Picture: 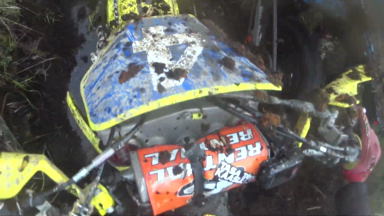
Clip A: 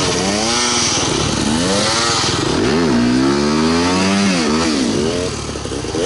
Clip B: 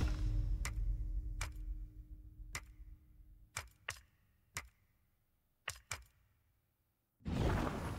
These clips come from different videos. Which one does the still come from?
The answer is A